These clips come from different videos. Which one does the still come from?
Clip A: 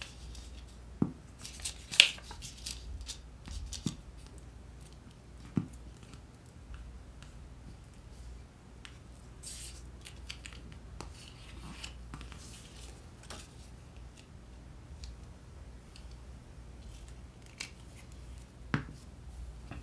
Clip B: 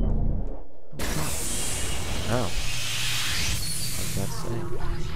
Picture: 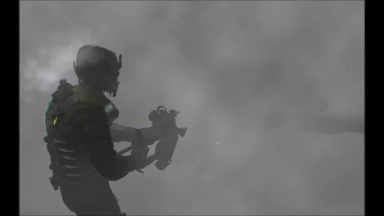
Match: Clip B